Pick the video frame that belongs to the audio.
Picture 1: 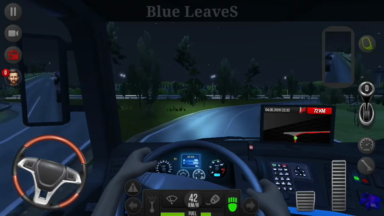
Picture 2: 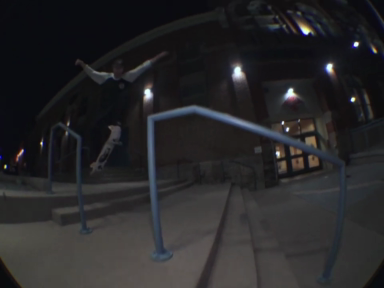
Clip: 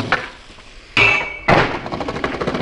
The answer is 2